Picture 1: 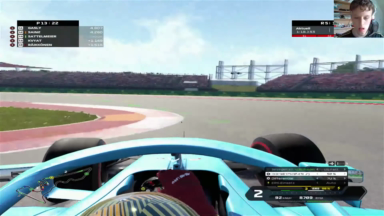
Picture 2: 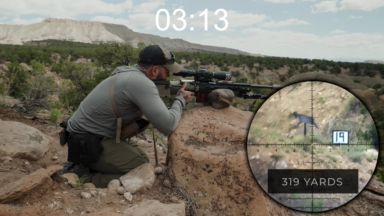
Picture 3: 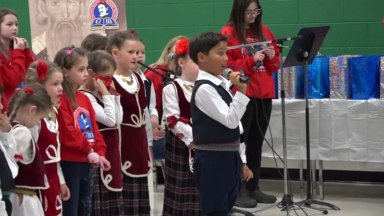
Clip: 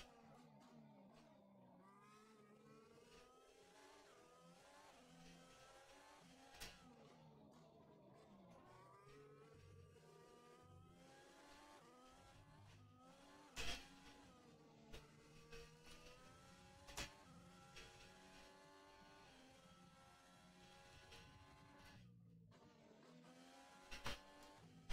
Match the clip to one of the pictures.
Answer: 1